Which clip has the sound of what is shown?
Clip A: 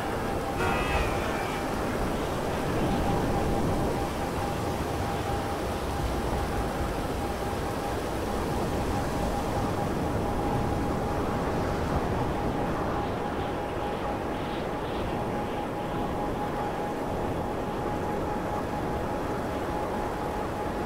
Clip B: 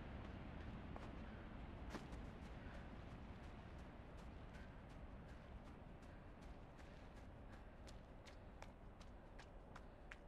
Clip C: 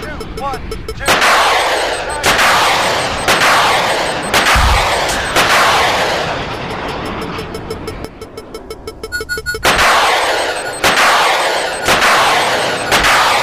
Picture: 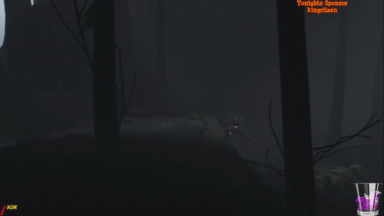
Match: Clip B